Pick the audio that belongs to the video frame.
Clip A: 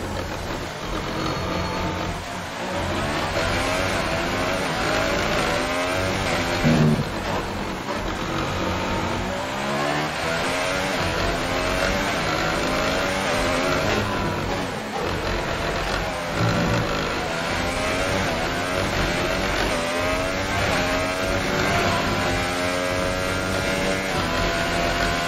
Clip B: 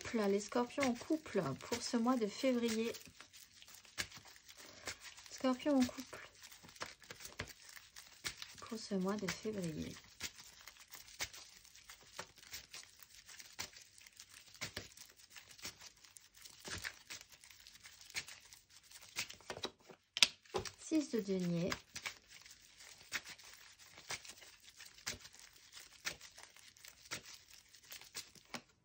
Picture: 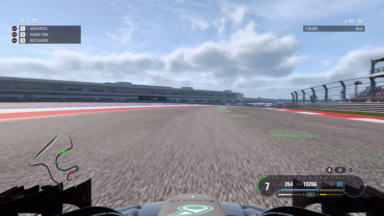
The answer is A